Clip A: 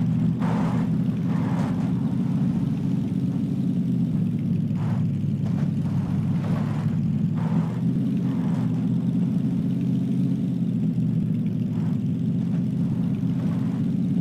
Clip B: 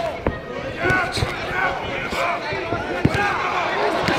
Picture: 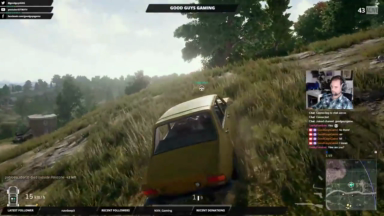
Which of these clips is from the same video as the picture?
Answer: A